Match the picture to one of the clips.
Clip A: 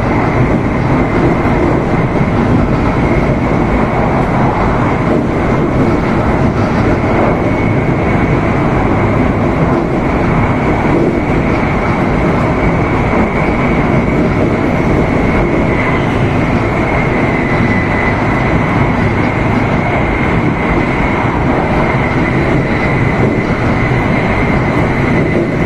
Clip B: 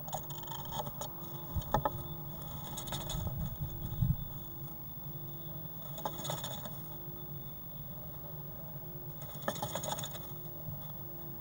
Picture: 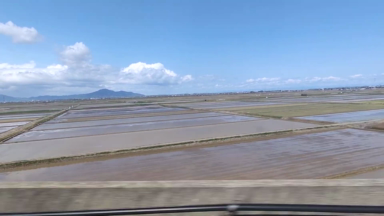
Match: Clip A